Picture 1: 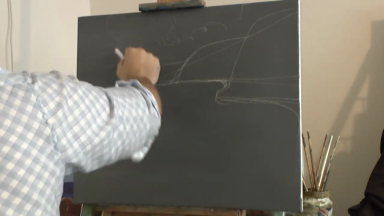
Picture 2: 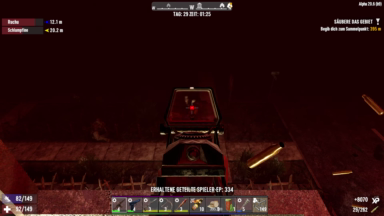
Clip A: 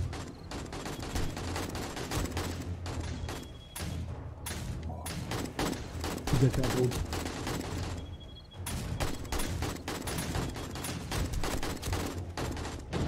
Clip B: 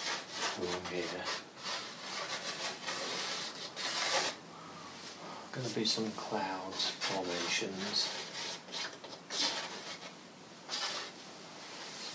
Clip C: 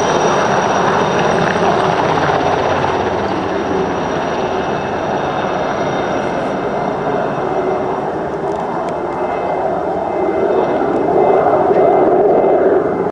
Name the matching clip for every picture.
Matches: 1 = B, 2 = A